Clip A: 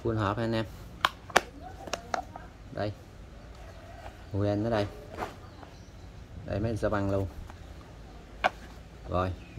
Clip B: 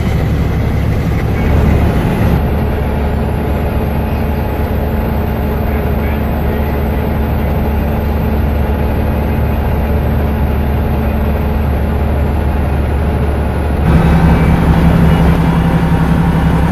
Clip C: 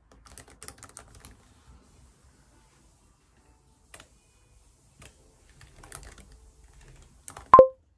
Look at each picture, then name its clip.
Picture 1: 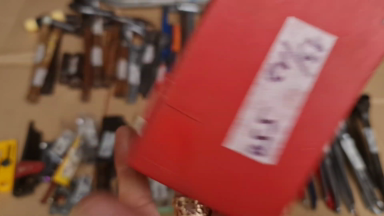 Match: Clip A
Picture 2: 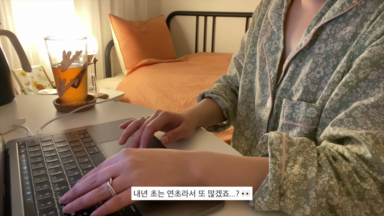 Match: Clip C